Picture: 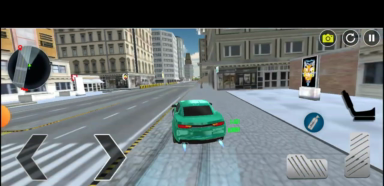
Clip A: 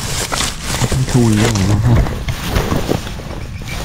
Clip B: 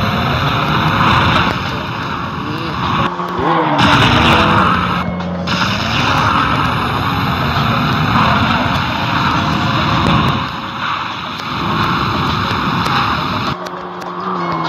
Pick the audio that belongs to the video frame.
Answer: B